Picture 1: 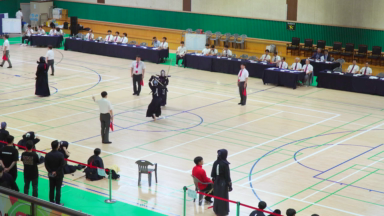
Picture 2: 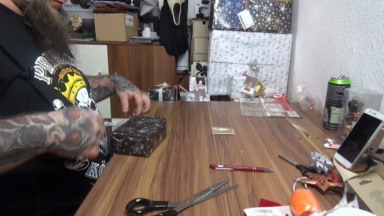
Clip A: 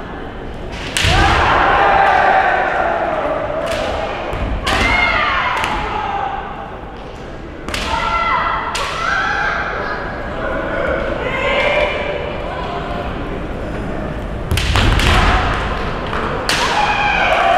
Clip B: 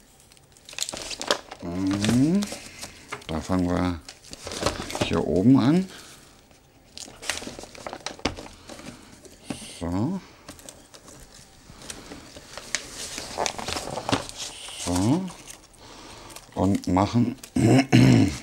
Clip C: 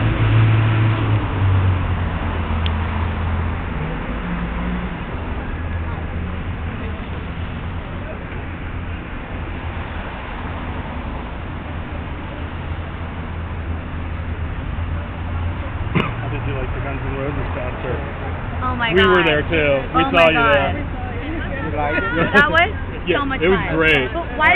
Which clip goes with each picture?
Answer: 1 A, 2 B